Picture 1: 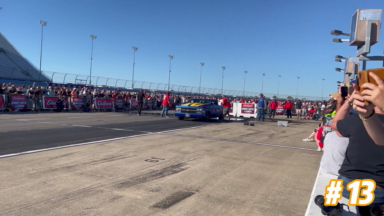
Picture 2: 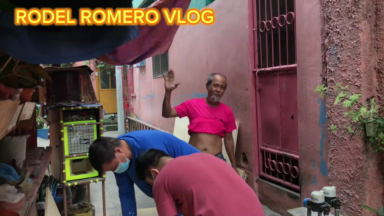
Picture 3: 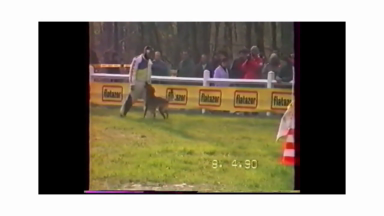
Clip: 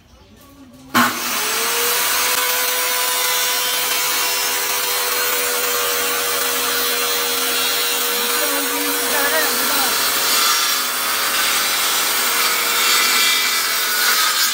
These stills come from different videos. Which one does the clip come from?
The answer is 2